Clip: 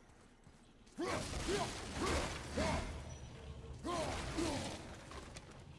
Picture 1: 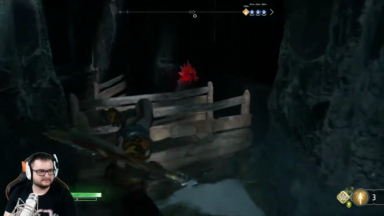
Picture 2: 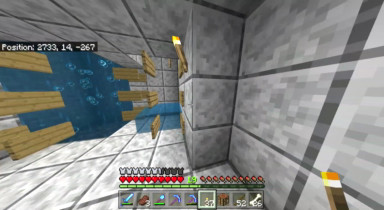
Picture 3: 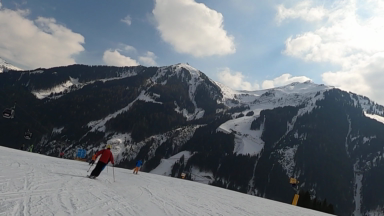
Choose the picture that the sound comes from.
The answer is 1